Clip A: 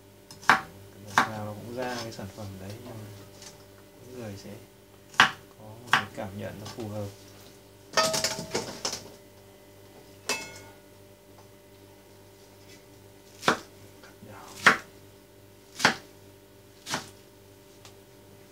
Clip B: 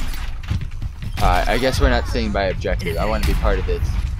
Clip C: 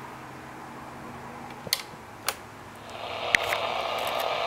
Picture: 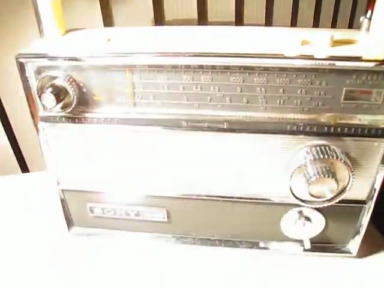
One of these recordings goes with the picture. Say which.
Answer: C